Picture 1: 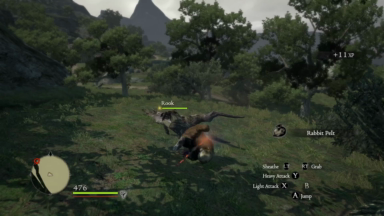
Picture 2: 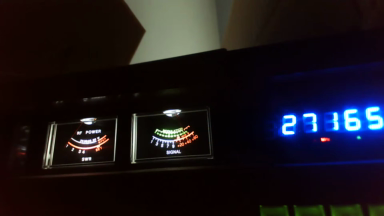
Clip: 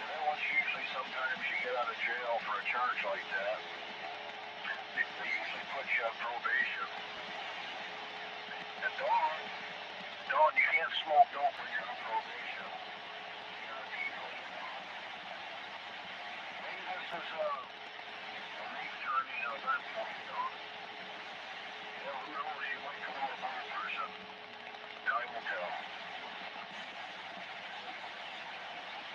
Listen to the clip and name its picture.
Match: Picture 2